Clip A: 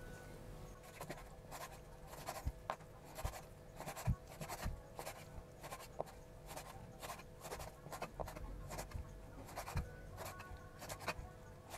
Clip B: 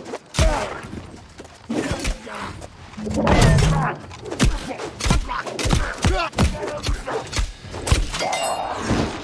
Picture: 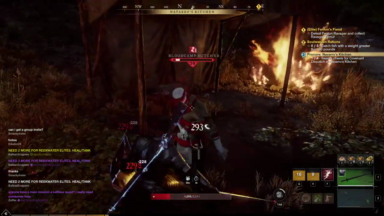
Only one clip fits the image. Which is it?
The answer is B